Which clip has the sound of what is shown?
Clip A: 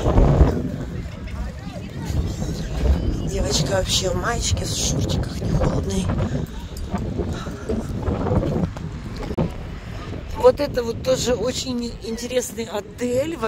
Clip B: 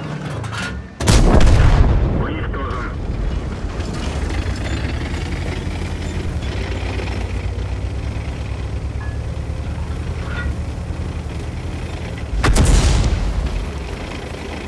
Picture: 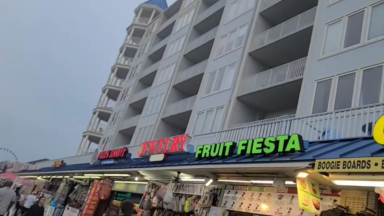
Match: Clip A